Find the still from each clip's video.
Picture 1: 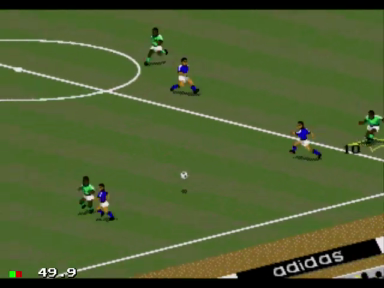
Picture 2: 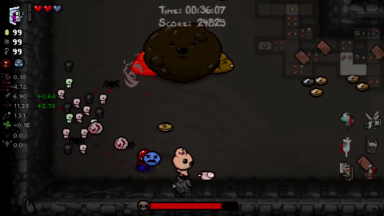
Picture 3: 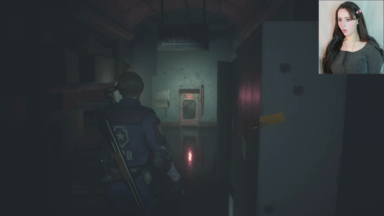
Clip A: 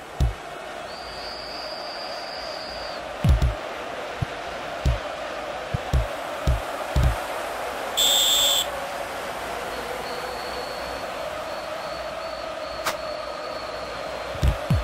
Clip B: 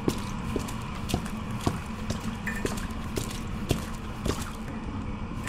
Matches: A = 1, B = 3